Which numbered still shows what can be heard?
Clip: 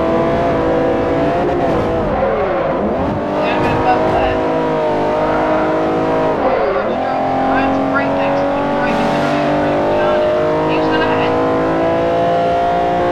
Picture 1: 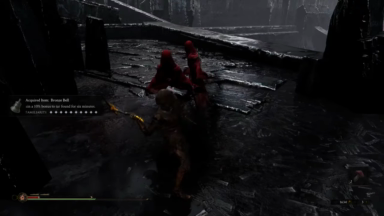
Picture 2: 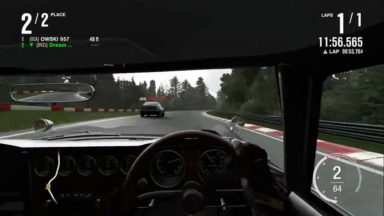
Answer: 2